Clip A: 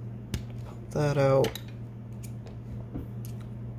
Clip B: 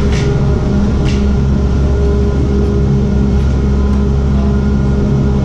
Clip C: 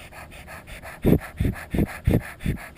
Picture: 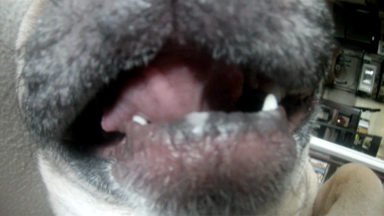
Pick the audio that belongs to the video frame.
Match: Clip C